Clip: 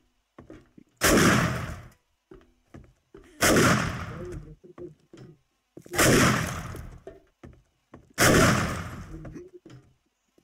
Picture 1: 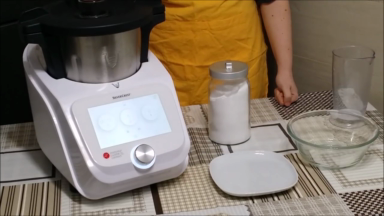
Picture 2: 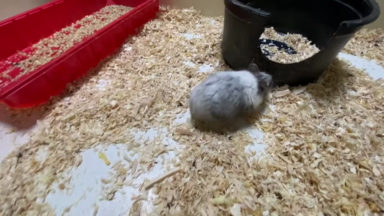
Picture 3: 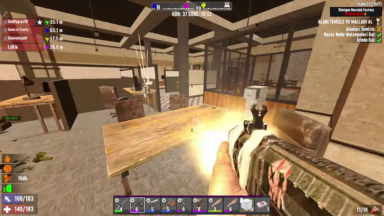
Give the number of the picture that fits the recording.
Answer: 3